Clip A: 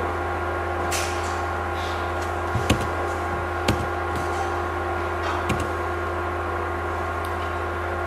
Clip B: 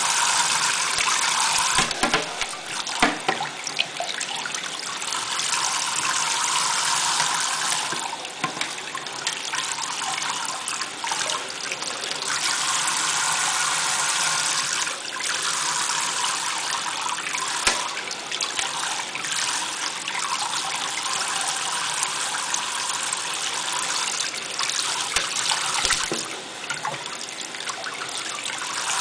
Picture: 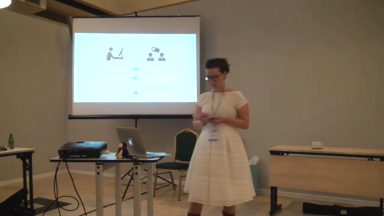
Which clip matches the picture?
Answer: A